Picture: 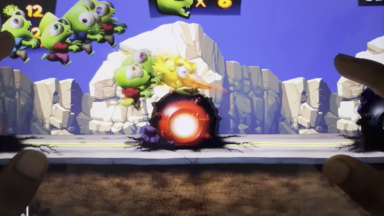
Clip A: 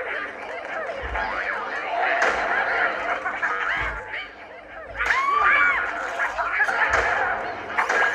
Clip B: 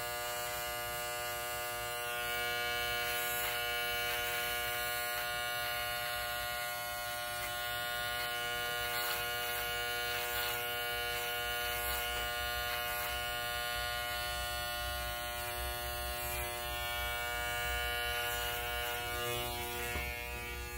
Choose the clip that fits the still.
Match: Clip A